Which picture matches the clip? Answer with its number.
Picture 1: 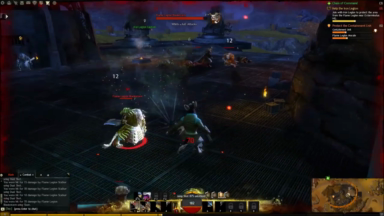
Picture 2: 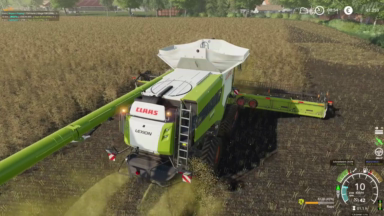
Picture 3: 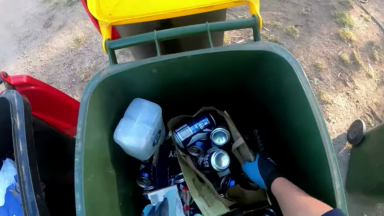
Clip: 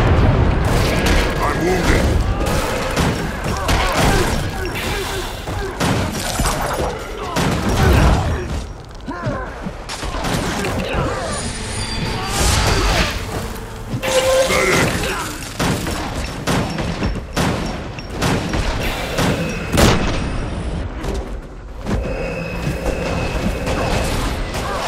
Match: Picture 1